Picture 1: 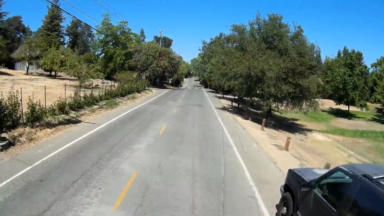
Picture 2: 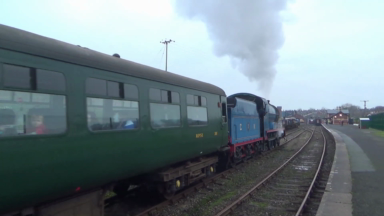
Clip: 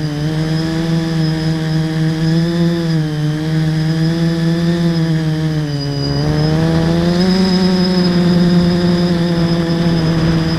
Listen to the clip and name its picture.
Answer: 1